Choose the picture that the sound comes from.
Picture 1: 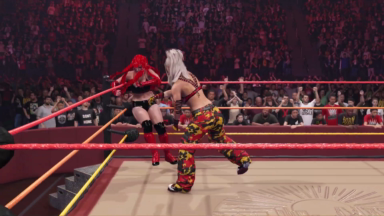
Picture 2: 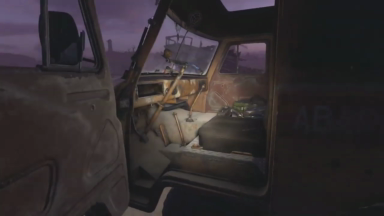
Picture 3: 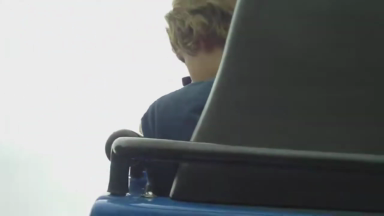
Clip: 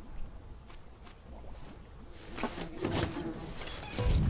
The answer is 2